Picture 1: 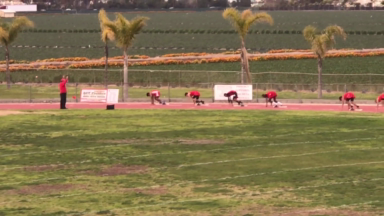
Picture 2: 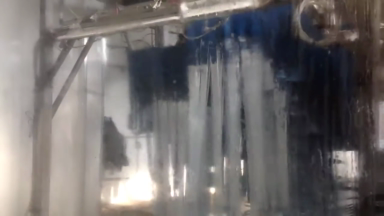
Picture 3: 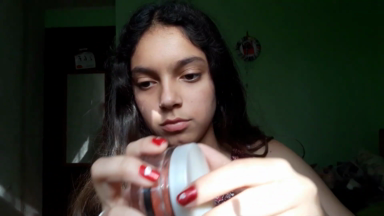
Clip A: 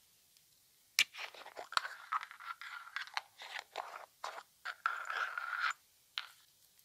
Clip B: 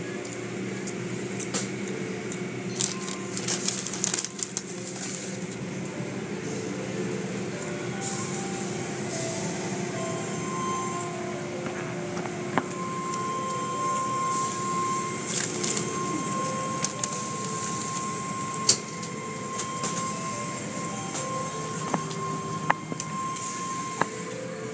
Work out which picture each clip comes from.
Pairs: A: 3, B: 2